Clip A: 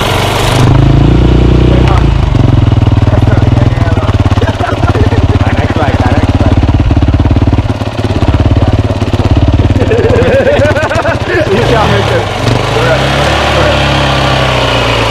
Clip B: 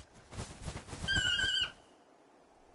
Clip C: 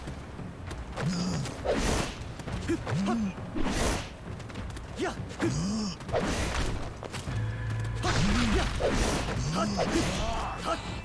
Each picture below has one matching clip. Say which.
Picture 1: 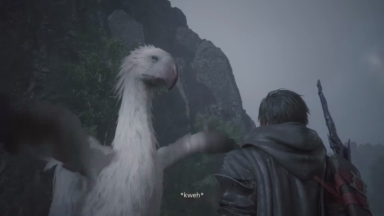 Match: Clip B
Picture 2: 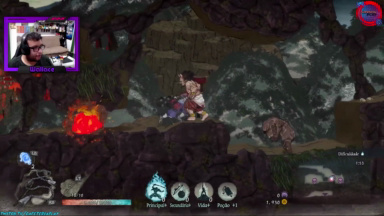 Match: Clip C